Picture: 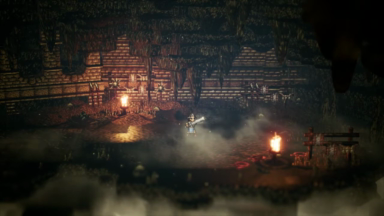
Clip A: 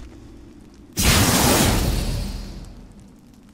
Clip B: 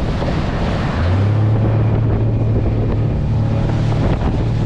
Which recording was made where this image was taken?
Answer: A